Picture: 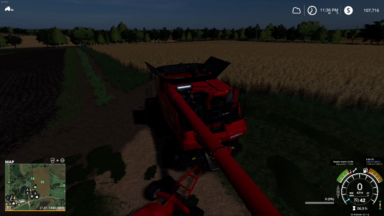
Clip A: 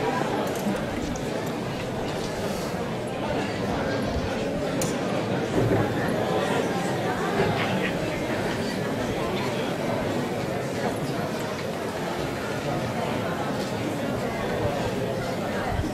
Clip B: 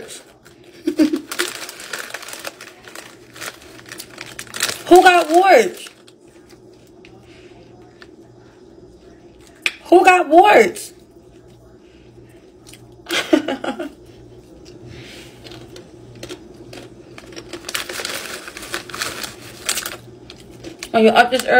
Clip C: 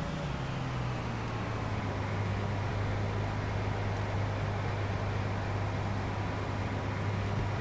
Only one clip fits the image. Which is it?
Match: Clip C